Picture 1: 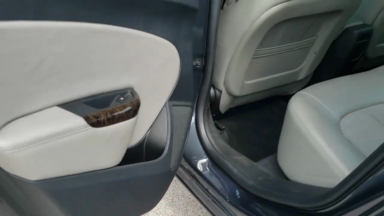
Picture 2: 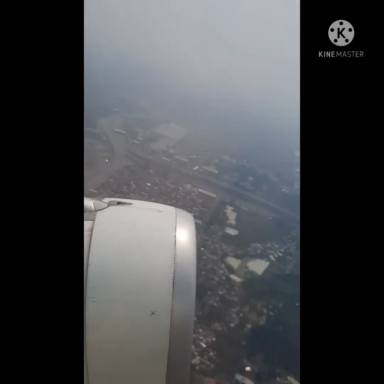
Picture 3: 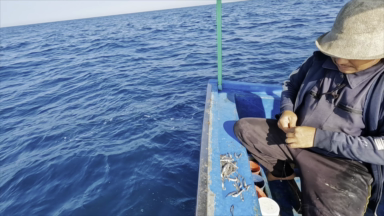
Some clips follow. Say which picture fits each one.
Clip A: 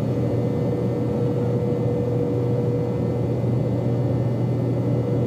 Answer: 2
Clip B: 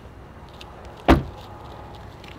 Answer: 1